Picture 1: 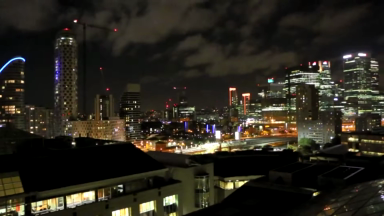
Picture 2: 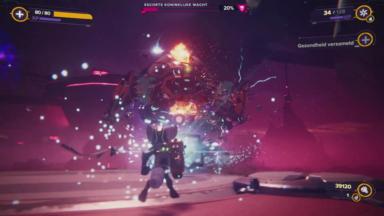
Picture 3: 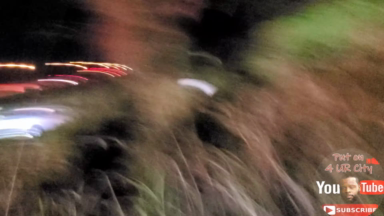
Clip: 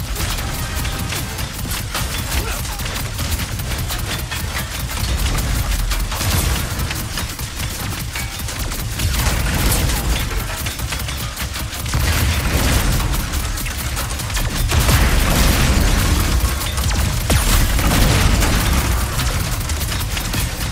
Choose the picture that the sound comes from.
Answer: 2